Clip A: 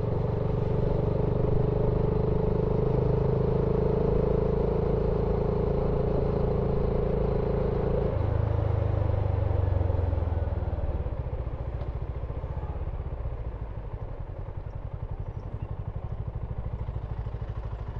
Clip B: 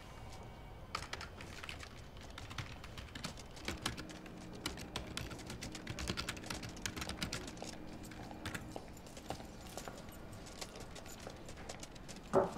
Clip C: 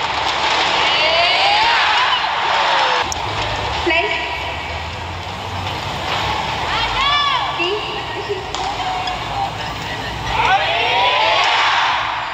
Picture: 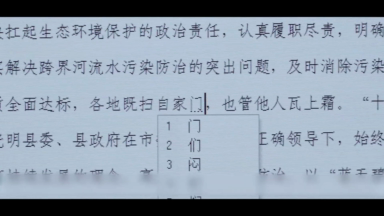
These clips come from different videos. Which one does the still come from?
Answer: B